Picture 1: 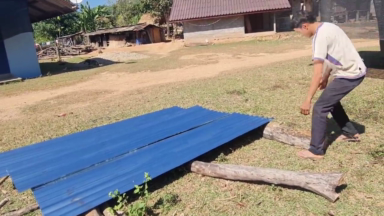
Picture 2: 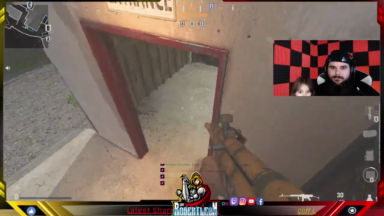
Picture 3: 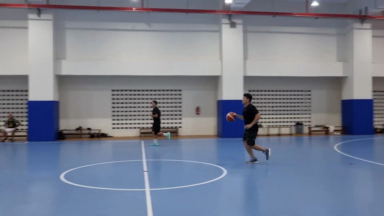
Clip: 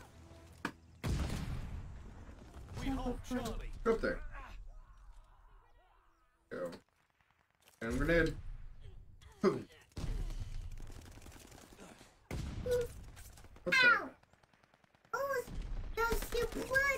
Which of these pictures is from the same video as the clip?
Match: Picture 2